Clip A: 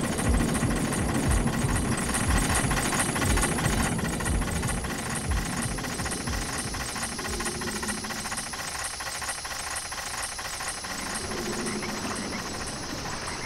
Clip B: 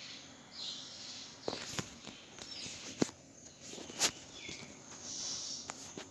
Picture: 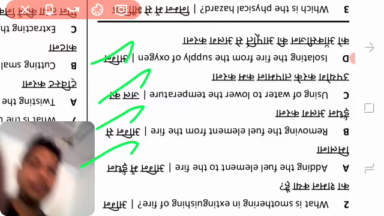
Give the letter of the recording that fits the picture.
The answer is B